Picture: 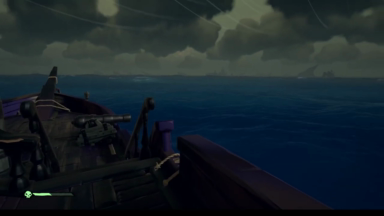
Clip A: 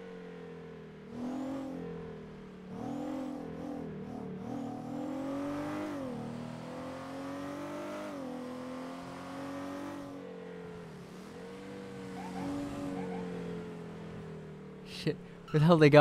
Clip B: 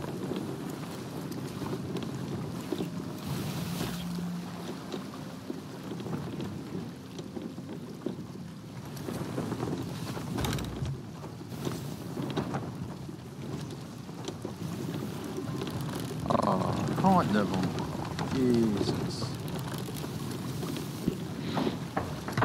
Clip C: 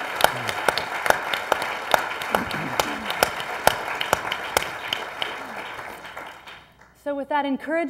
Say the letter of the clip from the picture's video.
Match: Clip B